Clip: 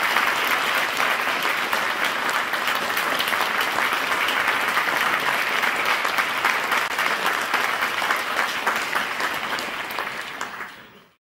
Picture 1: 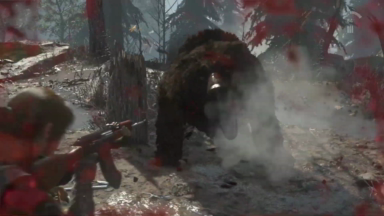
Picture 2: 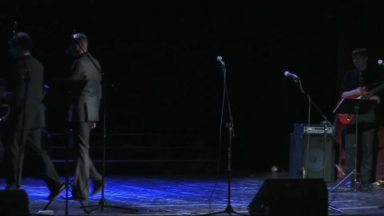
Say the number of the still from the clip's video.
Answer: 2